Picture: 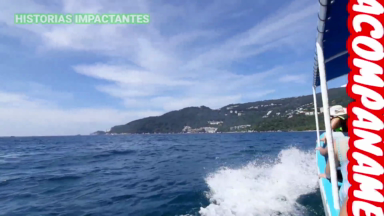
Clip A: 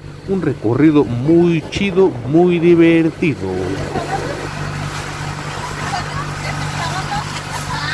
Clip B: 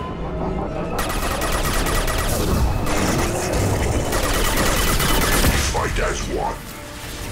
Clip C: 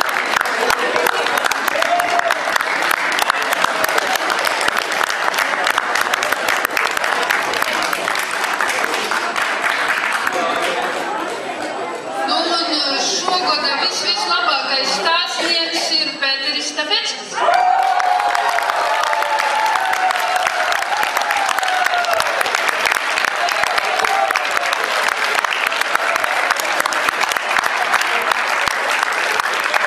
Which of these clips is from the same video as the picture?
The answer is A